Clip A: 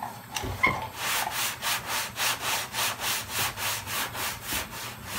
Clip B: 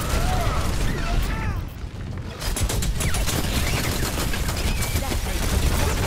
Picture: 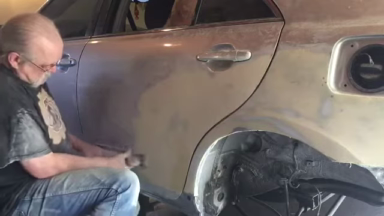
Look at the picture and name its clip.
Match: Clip A